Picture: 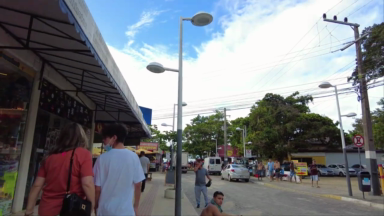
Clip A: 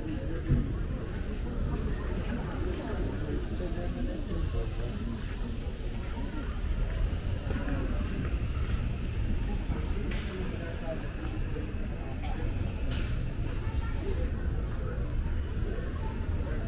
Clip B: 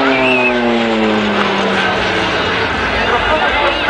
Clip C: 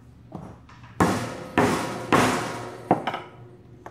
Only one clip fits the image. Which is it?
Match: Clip A